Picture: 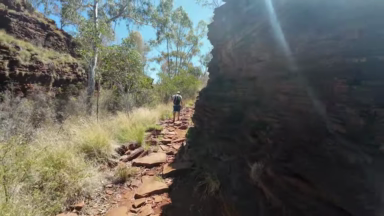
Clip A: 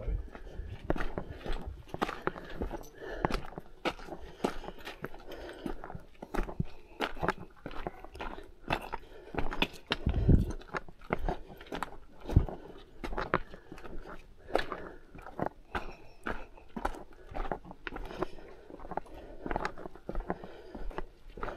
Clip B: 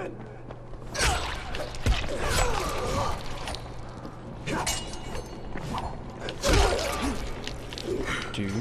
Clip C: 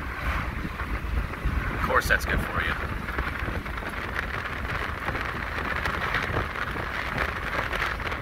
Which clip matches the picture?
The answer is A